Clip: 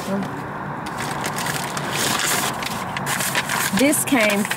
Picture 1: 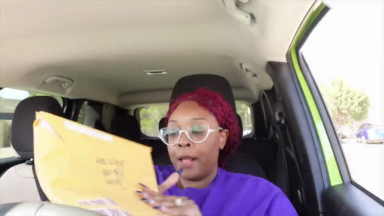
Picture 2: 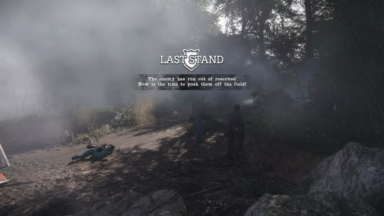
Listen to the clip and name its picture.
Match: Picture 1